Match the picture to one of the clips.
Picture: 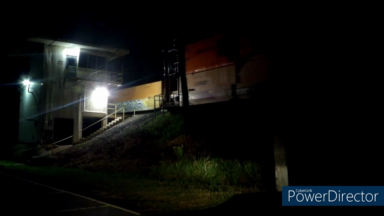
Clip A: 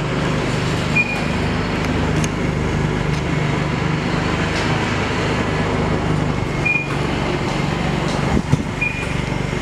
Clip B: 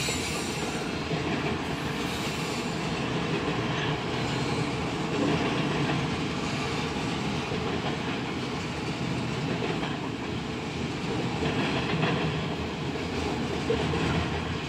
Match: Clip B